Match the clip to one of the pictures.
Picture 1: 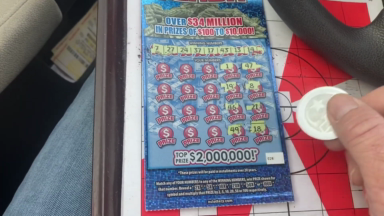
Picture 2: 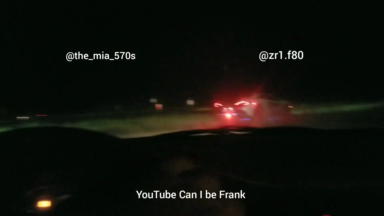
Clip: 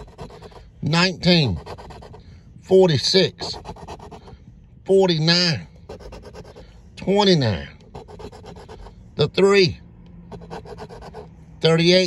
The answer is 1